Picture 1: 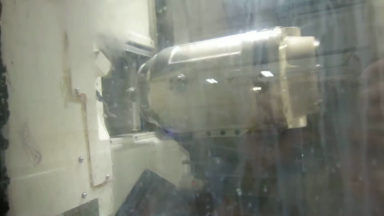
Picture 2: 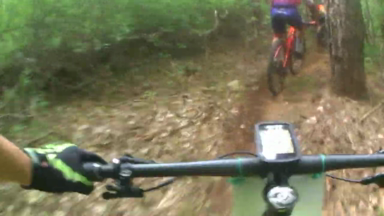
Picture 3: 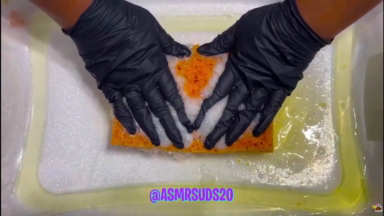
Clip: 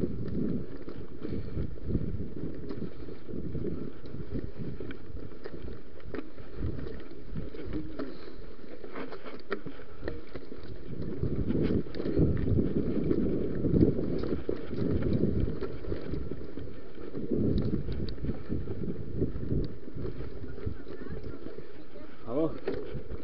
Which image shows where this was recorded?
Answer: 2